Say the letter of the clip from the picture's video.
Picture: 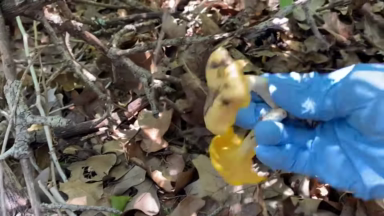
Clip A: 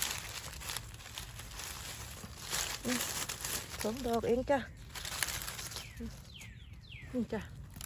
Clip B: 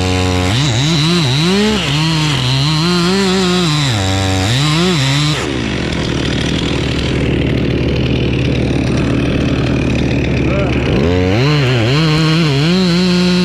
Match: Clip A